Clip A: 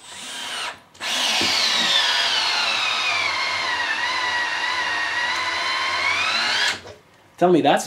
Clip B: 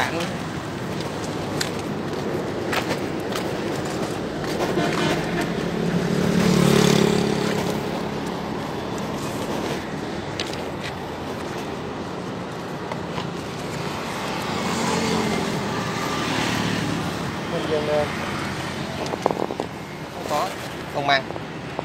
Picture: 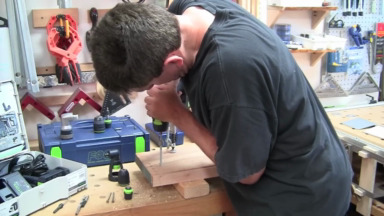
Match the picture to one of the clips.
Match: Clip A